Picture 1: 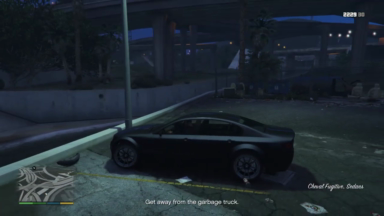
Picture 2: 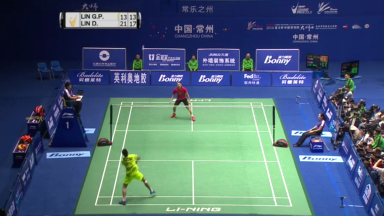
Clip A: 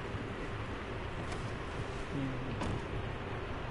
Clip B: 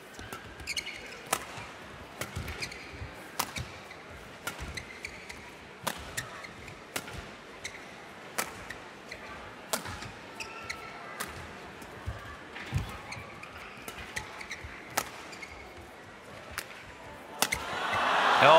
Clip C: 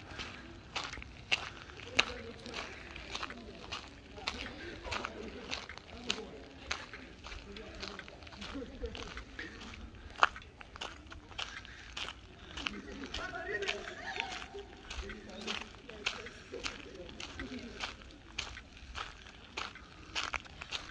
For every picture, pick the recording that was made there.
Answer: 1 A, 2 B